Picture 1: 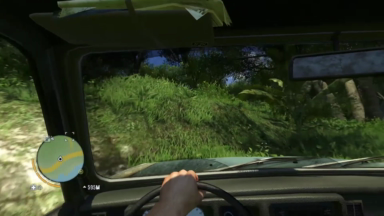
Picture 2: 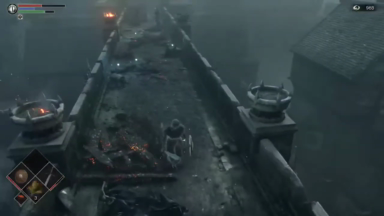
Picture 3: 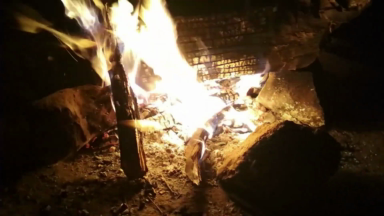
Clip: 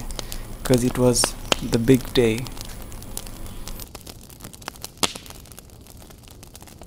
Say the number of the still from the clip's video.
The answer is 3